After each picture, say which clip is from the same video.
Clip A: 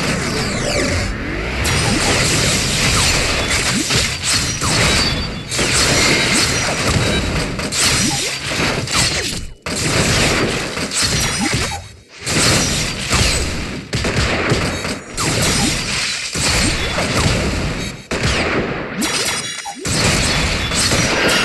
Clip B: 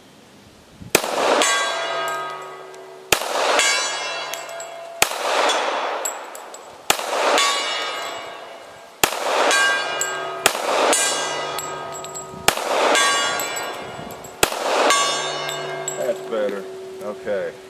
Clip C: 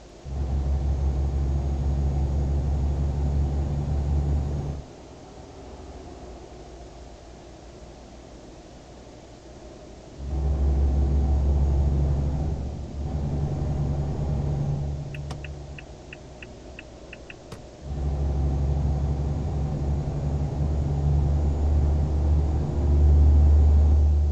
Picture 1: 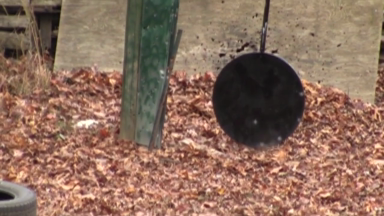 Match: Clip B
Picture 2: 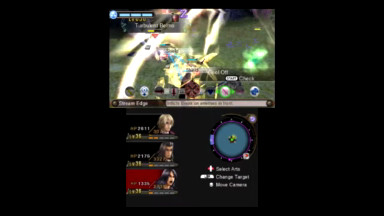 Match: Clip A